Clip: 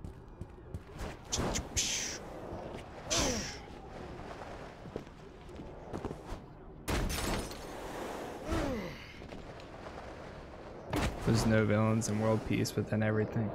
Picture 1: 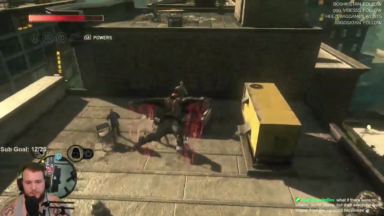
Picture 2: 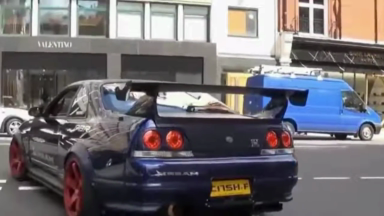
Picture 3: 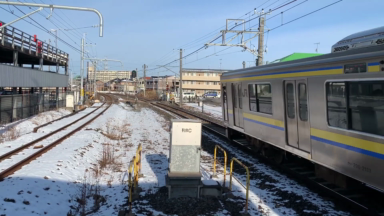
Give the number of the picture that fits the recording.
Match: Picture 1